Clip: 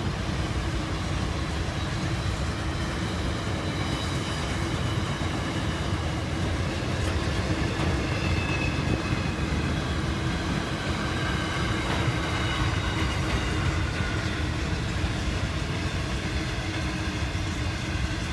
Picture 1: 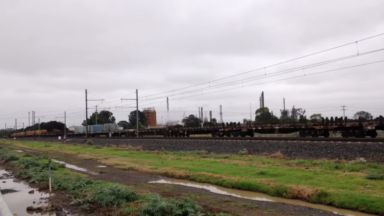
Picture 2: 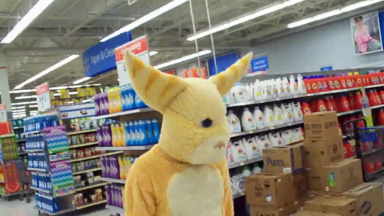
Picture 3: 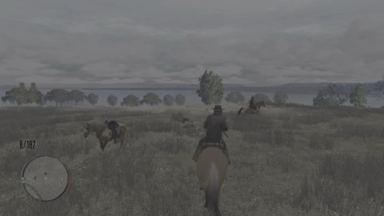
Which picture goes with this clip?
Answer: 1